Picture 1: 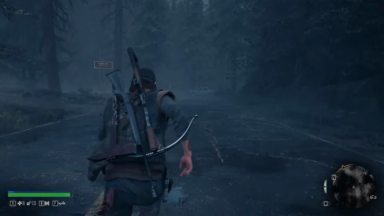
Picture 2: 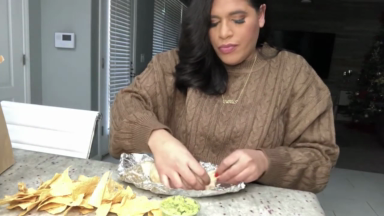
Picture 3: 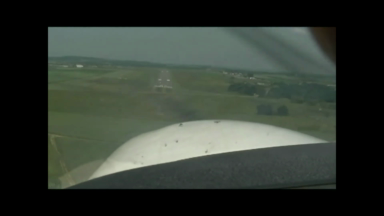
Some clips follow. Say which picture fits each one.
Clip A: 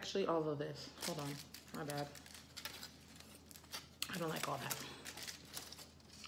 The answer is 2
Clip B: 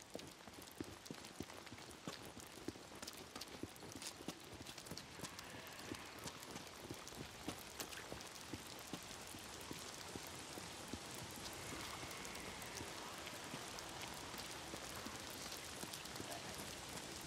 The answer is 1